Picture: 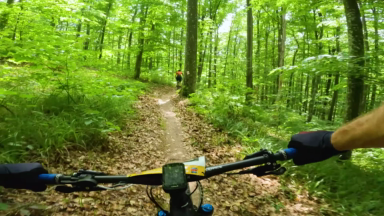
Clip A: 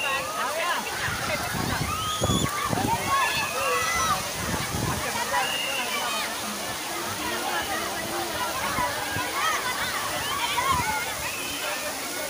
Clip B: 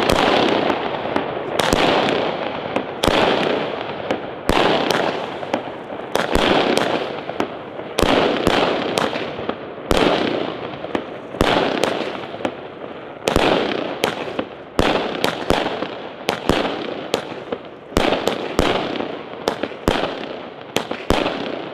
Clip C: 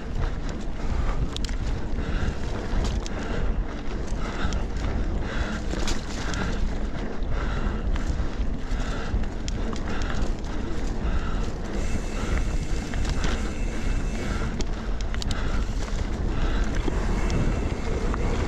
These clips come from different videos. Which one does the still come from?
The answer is C